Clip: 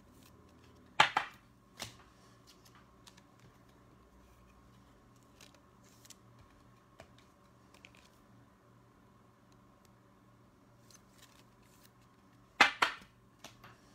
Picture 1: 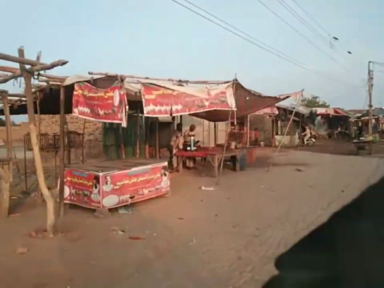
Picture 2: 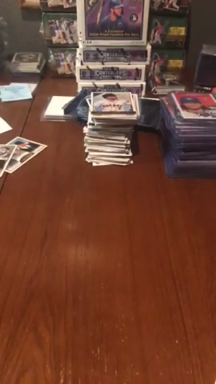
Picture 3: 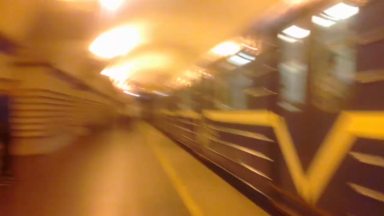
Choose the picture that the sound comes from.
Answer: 2